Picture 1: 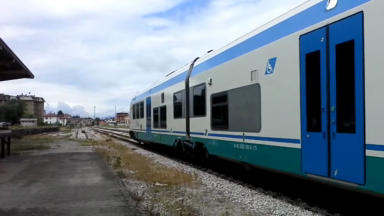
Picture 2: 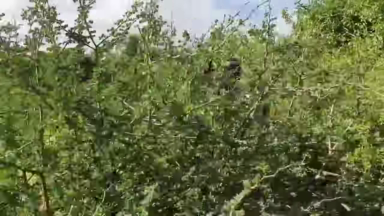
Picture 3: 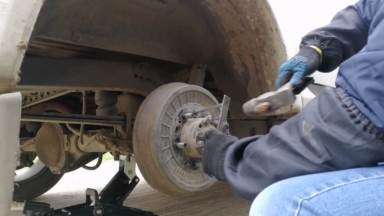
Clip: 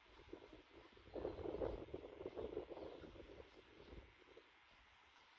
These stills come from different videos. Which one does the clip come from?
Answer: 2